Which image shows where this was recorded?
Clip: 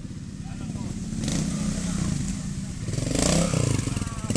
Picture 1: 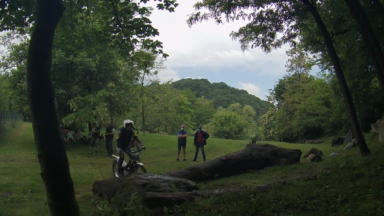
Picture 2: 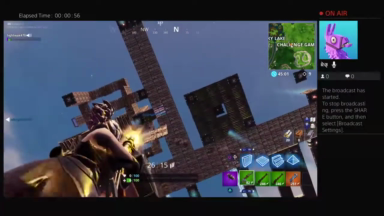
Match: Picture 1